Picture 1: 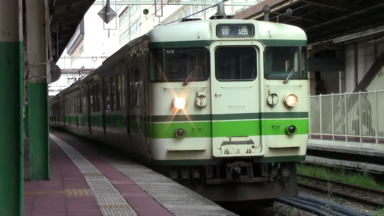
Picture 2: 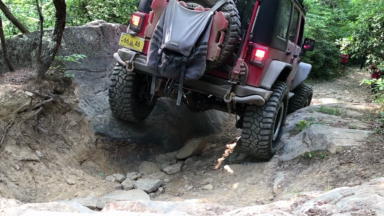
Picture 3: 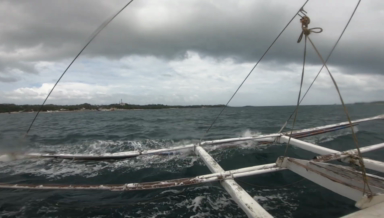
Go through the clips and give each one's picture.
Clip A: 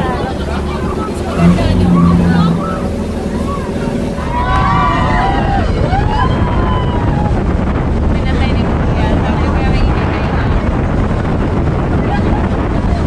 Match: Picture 3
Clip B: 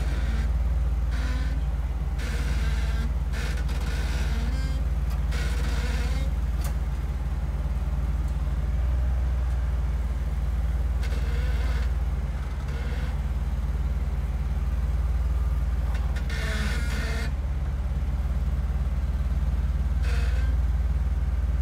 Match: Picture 2